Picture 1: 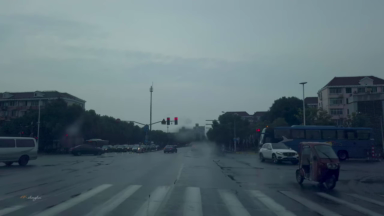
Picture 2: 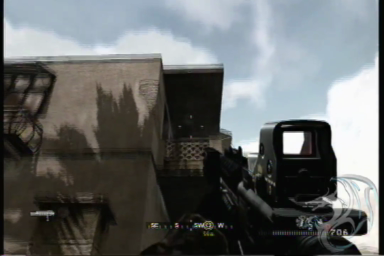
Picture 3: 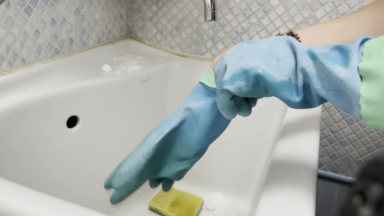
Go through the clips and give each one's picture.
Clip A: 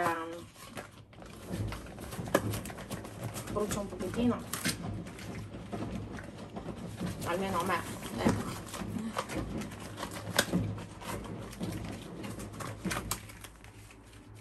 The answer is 3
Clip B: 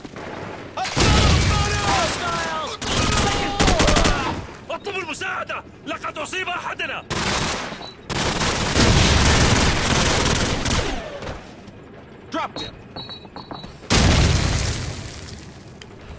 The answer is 2